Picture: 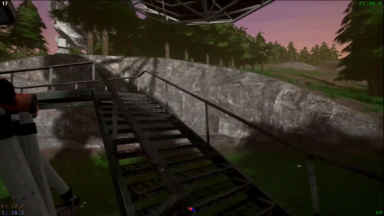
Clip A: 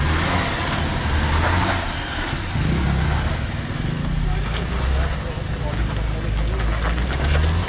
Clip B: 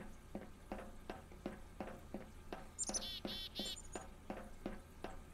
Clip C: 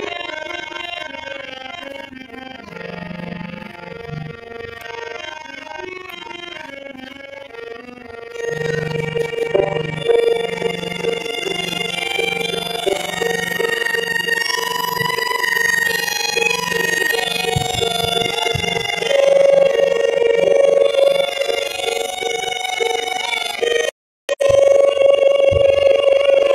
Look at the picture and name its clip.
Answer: B